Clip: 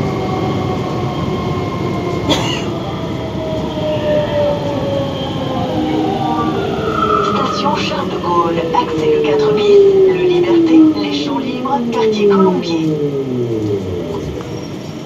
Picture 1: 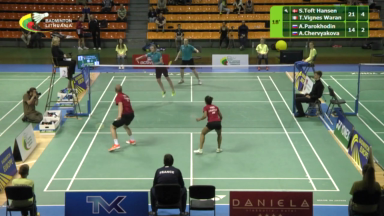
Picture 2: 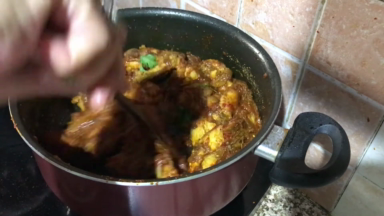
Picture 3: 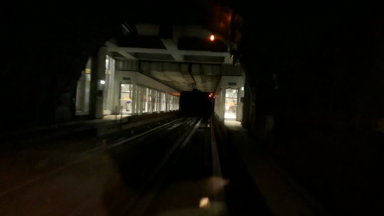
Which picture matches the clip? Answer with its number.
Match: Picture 3